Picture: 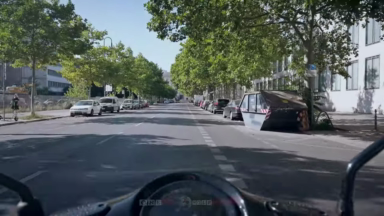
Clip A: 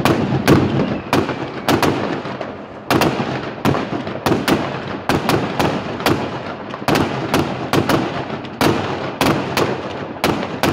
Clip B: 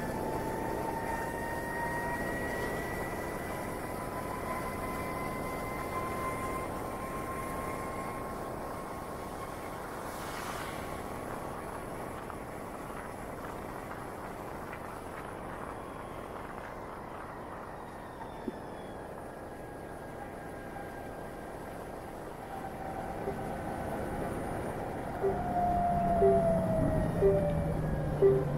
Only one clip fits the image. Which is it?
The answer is B